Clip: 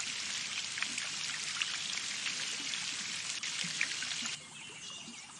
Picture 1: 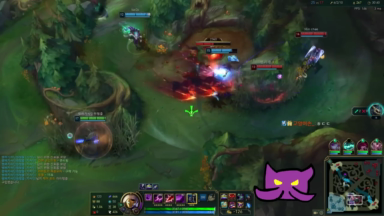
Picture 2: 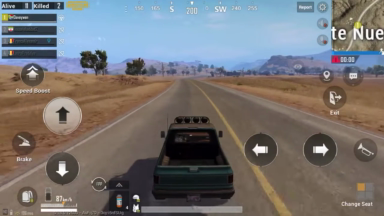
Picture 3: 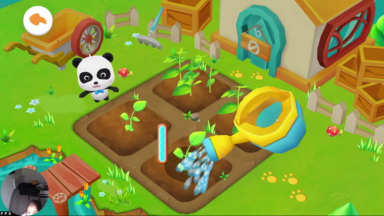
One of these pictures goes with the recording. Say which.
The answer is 3